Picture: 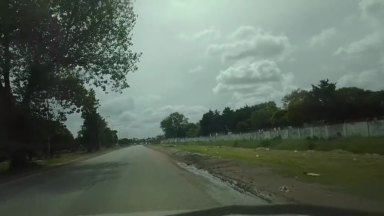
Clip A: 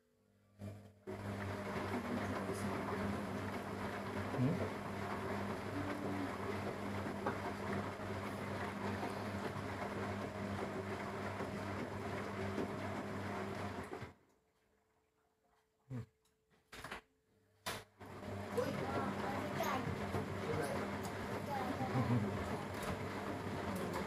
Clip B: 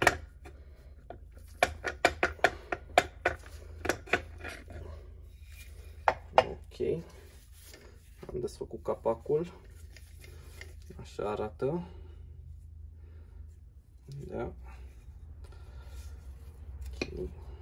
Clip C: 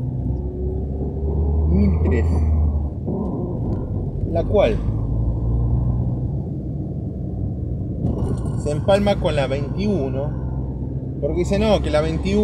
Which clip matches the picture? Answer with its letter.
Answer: C